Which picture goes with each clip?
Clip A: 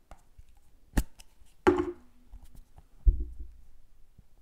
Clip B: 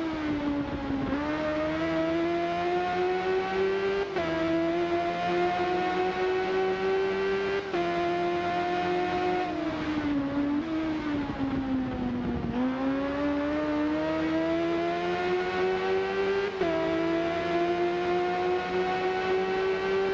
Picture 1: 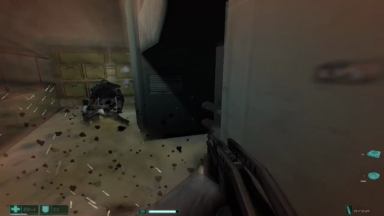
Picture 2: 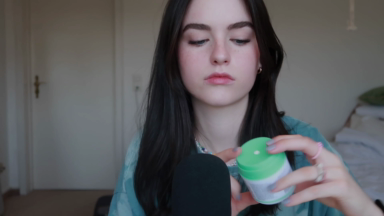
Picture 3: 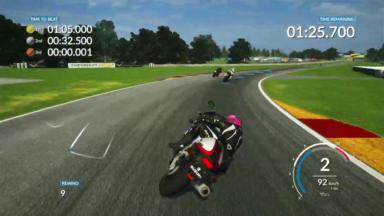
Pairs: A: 2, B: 3